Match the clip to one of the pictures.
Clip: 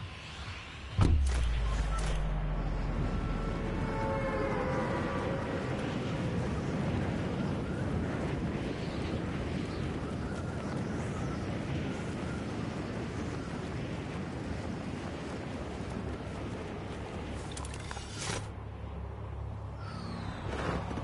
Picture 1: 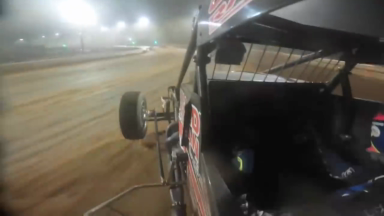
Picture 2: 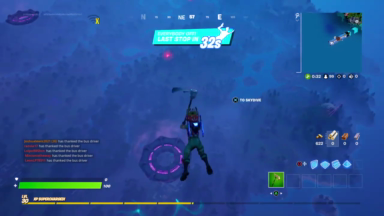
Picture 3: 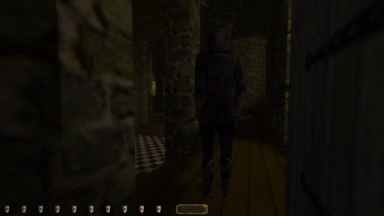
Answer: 2